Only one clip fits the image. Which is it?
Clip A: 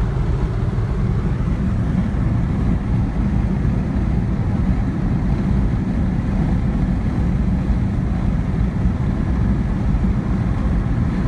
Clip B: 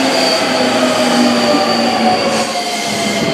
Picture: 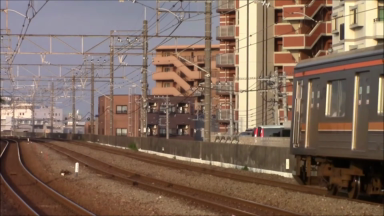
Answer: B